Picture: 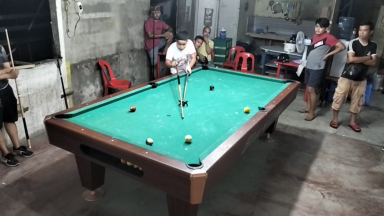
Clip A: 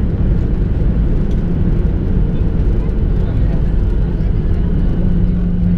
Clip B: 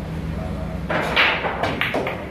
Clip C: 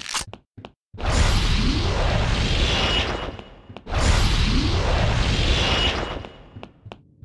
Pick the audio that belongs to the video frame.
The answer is B